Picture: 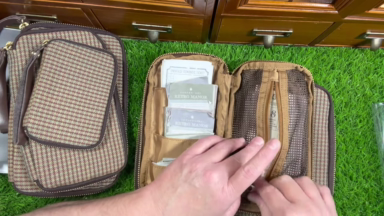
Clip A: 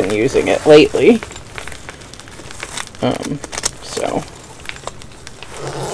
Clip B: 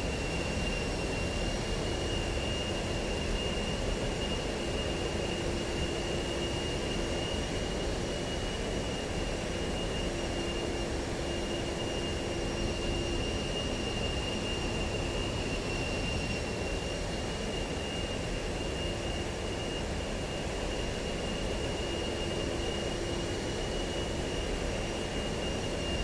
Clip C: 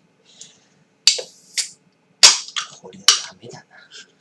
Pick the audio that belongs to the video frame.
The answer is A